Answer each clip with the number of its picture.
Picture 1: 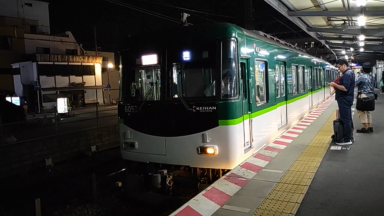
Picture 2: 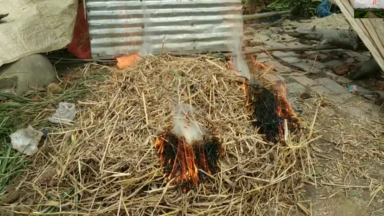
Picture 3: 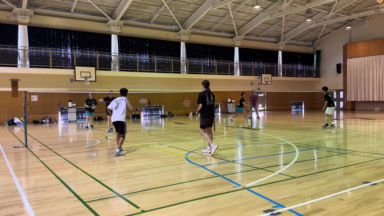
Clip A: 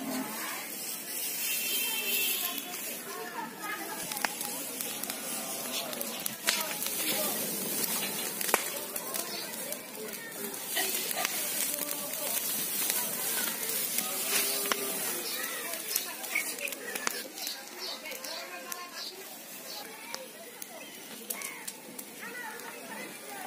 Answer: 2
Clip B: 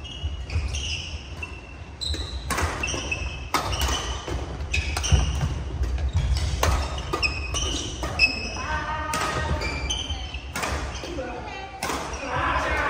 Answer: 3